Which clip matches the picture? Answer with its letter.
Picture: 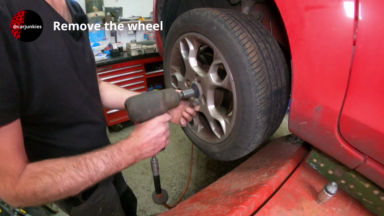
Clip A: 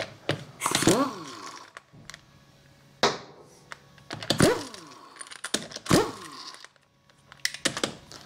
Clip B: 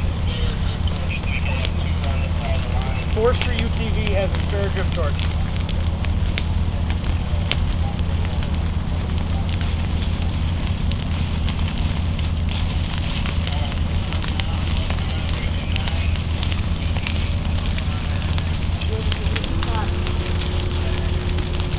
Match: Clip A